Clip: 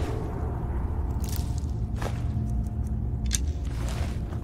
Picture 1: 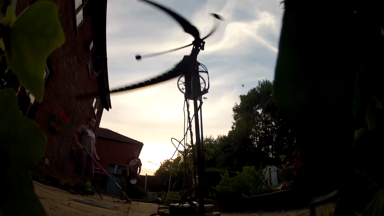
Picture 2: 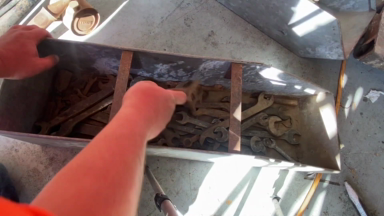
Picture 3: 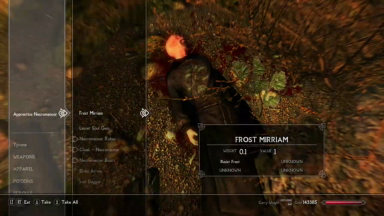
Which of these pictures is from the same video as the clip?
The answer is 3